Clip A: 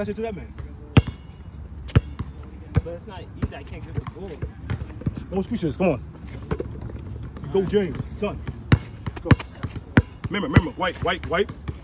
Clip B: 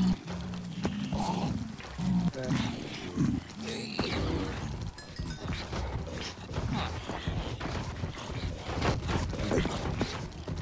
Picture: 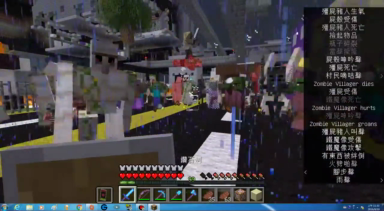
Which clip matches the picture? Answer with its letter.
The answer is B